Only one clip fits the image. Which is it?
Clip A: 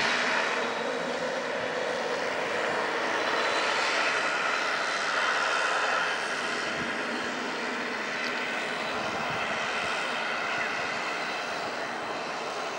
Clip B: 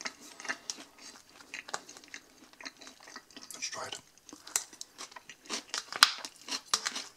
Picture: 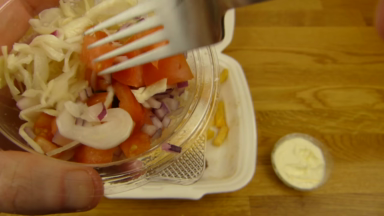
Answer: B